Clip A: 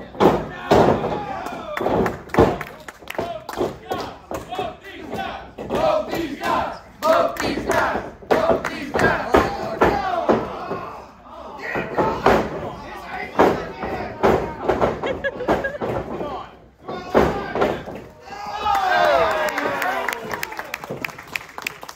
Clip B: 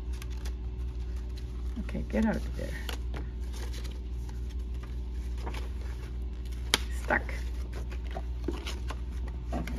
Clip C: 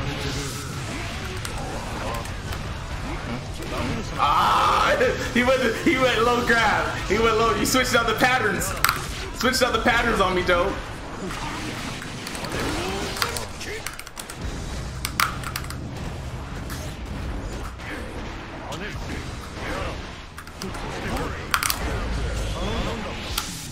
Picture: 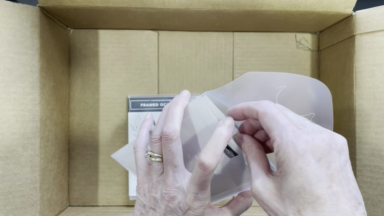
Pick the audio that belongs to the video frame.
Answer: B